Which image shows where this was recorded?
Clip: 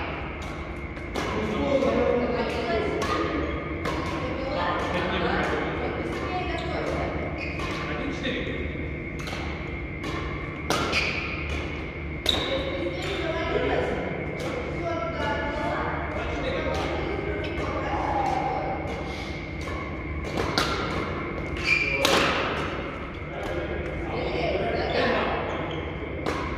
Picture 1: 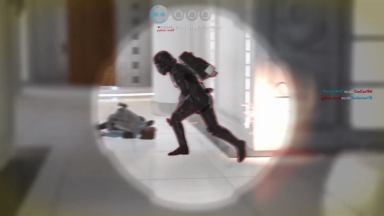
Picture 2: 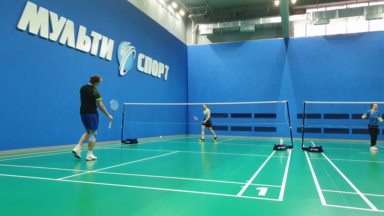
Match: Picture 2